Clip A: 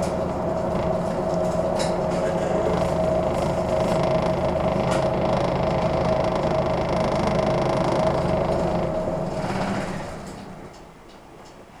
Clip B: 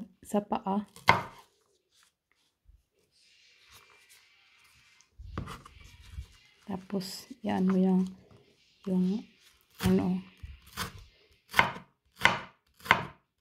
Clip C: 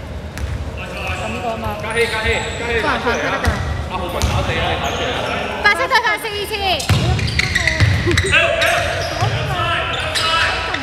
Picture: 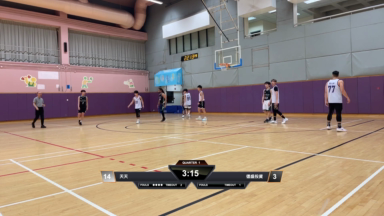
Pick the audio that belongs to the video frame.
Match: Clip C